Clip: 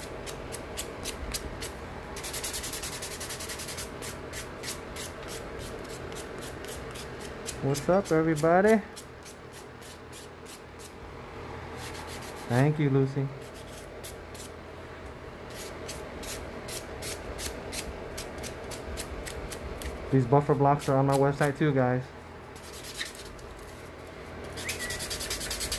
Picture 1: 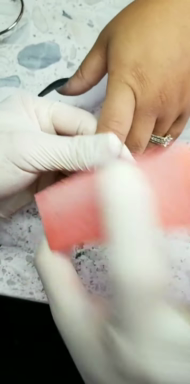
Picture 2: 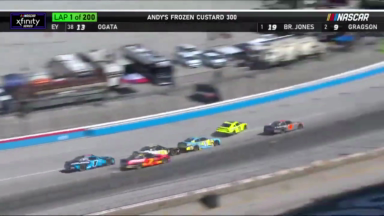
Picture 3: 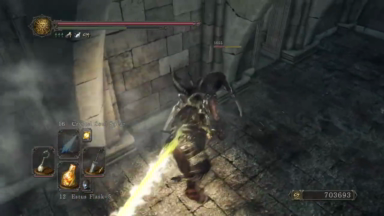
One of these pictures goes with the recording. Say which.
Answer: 1